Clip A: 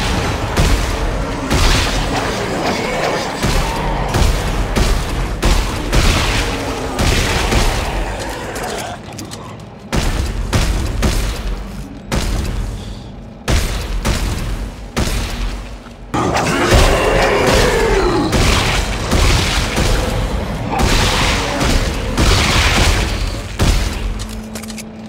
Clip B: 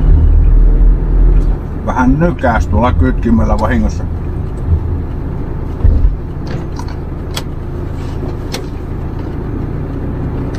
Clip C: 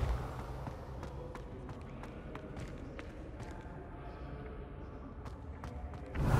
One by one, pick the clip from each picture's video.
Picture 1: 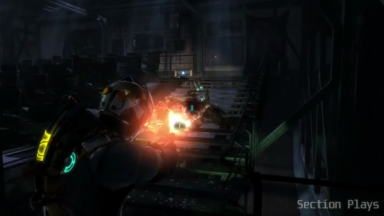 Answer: A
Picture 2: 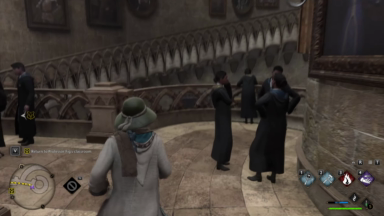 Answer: C